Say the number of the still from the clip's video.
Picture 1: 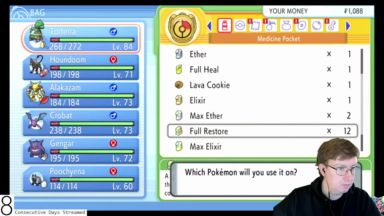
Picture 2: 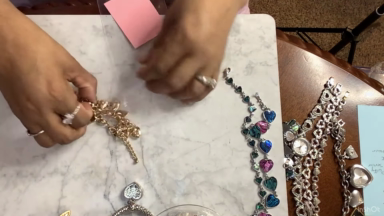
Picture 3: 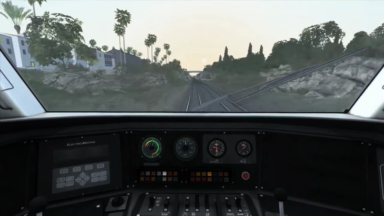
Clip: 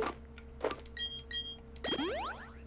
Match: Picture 1